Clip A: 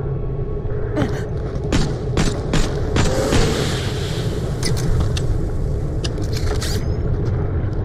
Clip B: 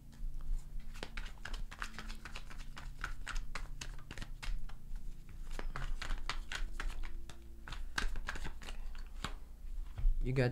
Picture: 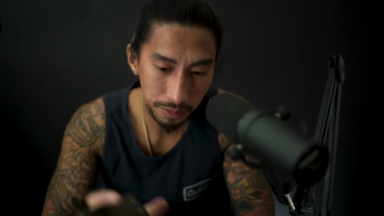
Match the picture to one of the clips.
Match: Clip B